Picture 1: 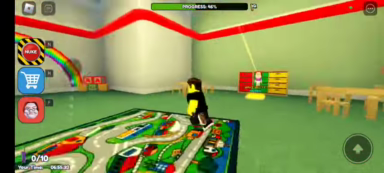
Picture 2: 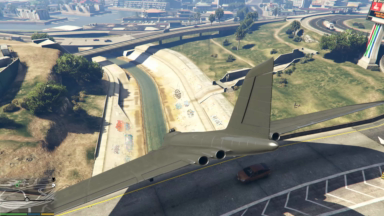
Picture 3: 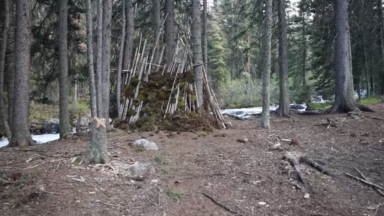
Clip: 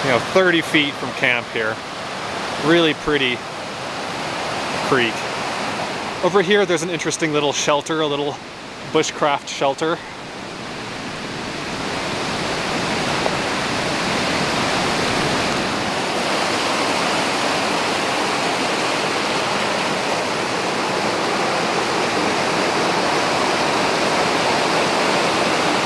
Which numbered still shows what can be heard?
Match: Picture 3